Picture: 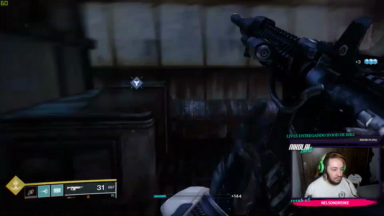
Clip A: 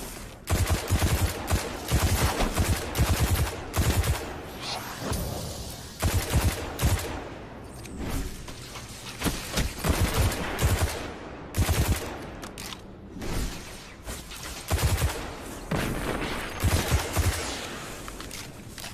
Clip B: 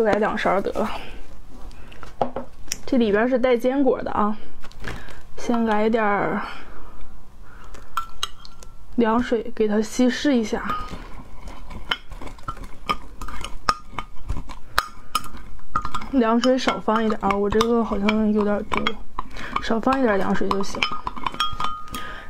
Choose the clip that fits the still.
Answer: A